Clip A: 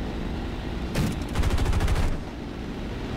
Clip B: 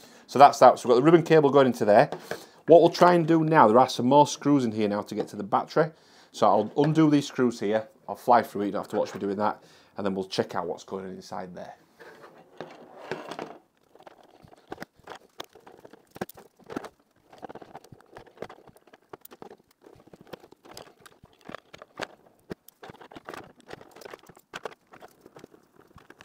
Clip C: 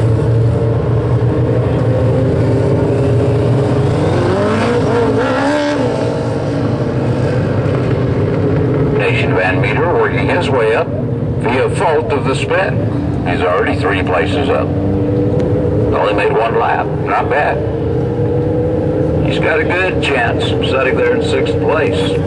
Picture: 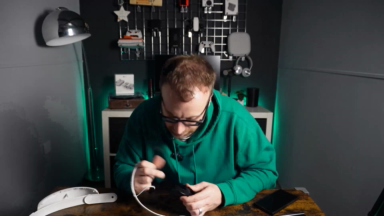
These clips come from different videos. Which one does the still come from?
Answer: B